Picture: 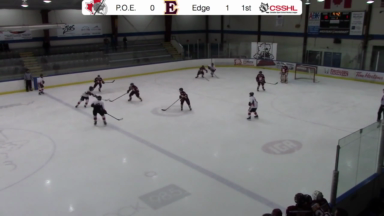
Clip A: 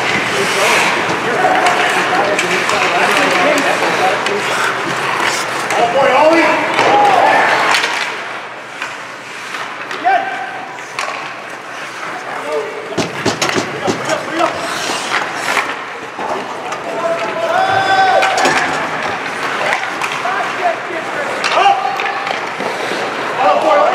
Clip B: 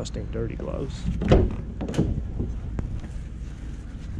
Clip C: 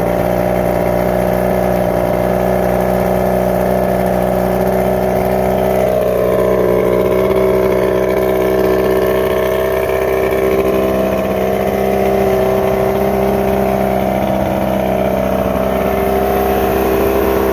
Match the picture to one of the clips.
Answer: A